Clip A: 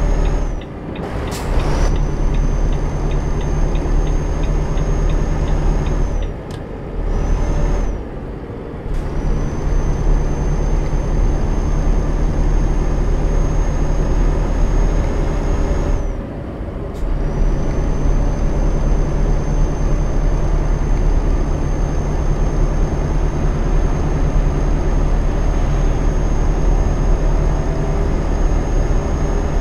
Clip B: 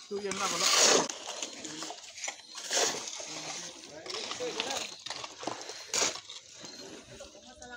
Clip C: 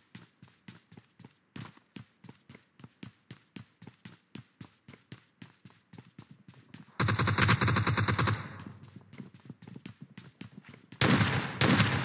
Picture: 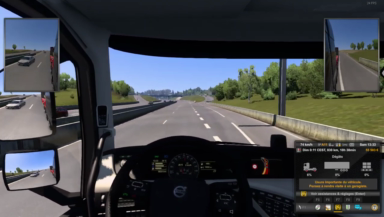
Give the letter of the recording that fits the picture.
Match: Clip A